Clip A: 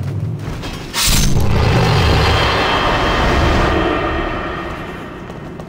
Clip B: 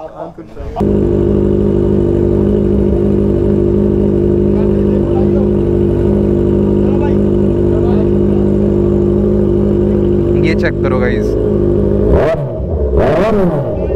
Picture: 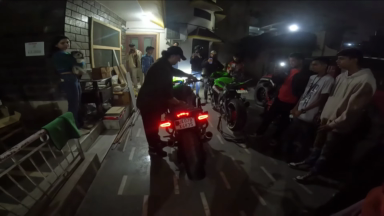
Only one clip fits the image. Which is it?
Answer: B